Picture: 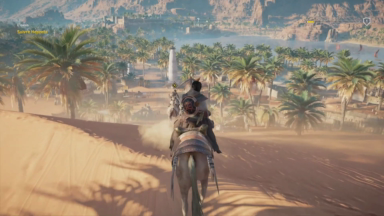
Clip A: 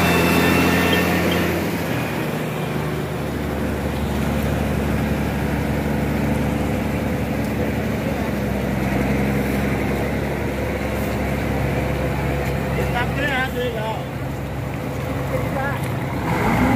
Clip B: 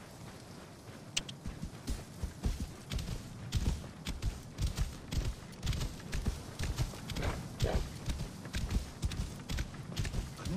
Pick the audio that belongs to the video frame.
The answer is B